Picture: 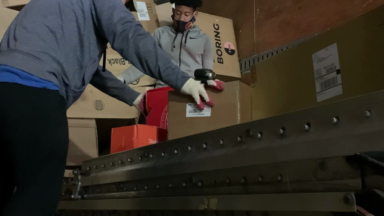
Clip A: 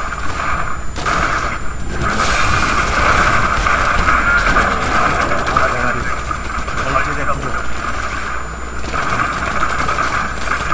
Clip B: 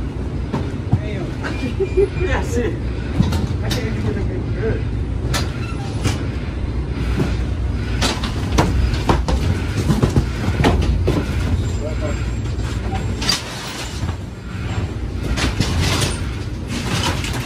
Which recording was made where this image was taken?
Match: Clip B